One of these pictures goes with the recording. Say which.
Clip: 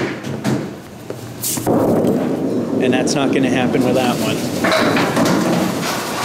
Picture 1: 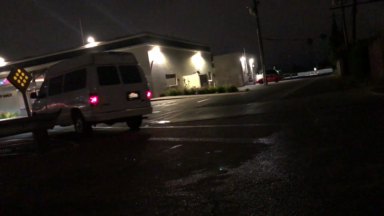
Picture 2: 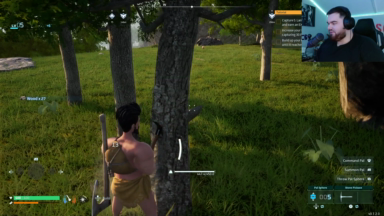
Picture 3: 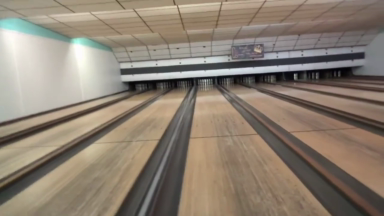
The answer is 3